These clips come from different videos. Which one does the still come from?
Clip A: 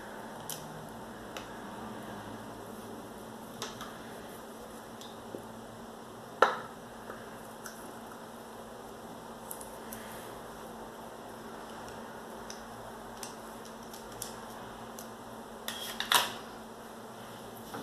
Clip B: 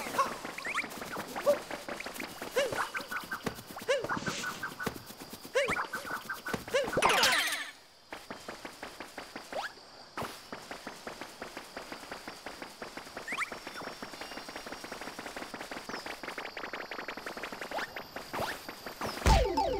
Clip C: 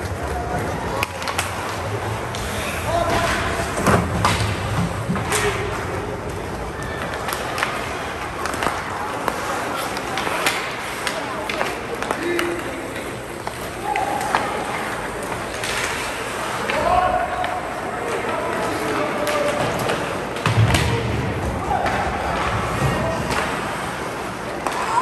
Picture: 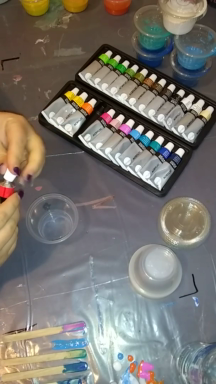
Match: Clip A